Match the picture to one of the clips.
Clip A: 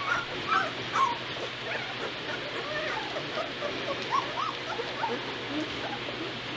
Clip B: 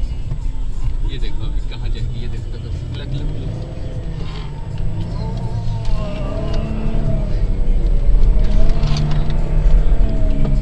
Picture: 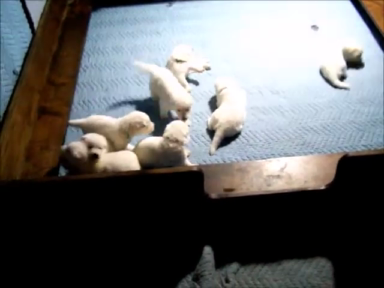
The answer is A